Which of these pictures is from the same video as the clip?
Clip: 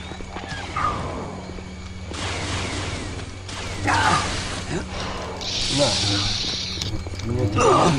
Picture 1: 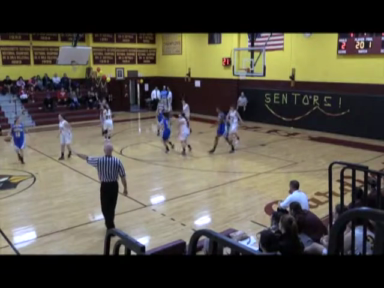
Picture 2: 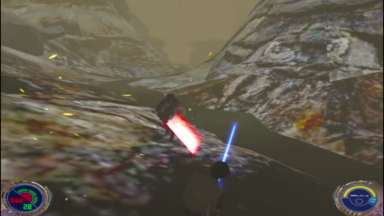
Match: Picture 2